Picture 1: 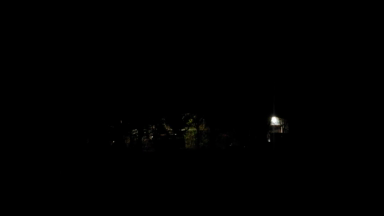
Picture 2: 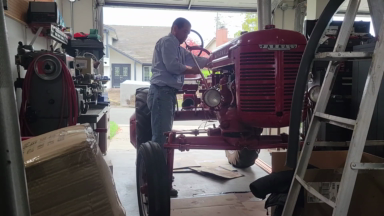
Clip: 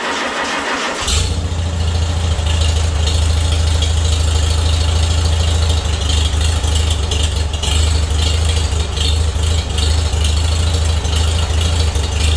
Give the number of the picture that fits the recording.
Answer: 2